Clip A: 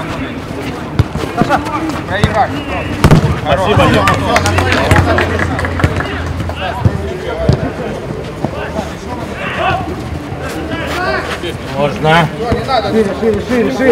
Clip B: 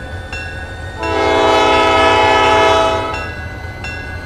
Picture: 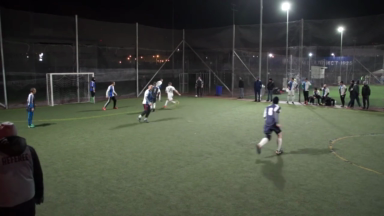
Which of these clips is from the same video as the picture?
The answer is A